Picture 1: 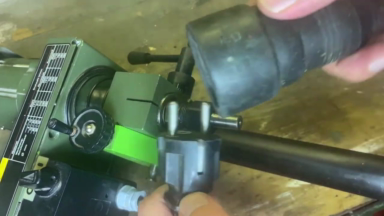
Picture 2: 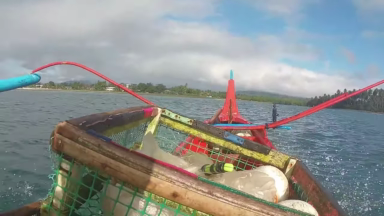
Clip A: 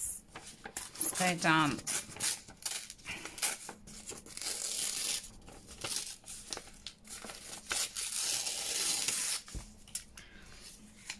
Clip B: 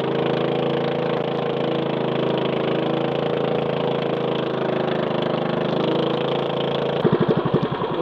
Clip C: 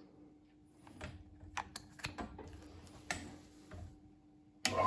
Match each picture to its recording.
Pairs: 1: C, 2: B